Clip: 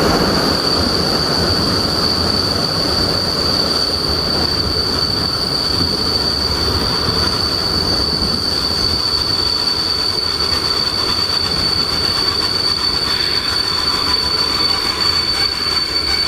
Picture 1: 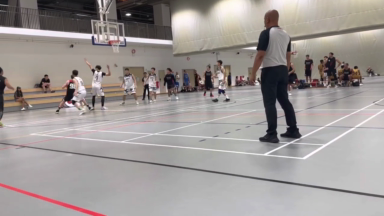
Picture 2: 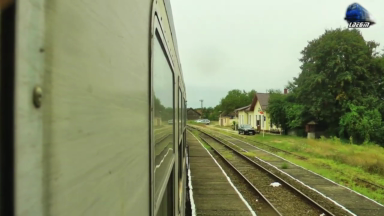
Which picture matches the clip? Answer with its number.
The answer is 2